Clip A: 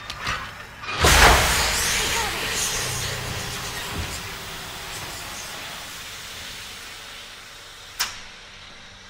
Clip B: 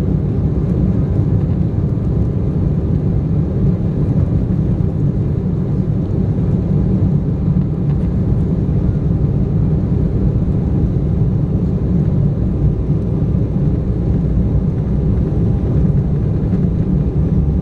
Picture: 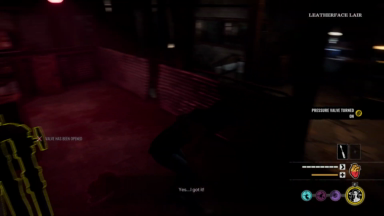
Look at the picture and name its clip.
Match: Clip A